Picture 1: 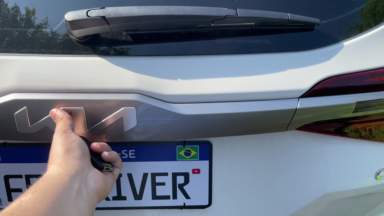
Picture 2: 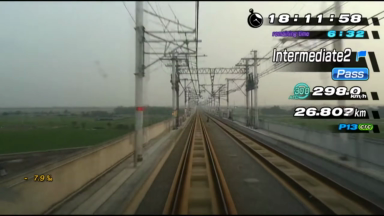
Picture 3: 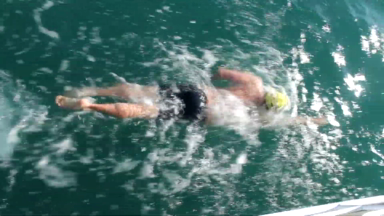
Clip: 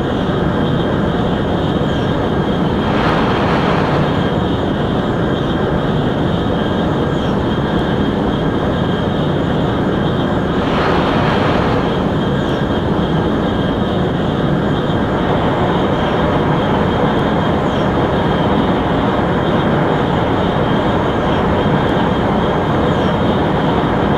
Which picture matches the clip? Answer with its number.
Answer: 2